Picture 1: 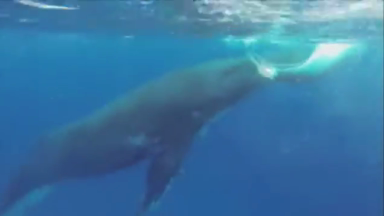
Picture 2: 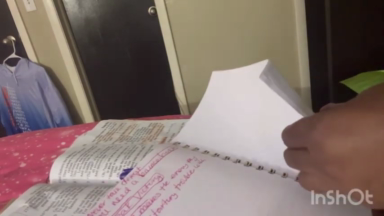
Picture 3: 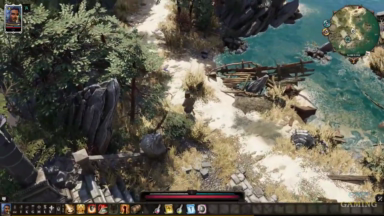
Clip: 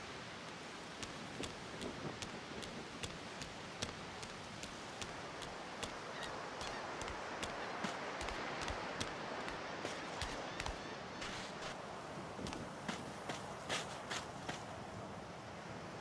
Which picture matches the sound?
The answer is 3